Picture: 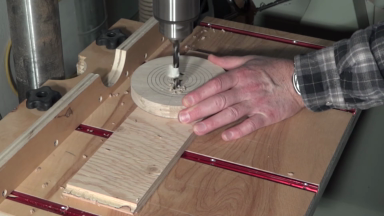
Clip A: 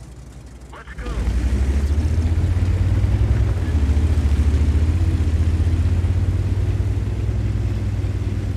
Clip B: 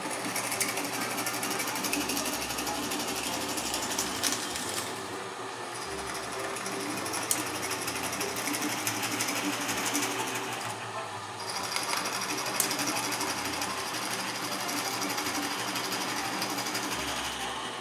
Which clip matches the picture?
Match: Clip B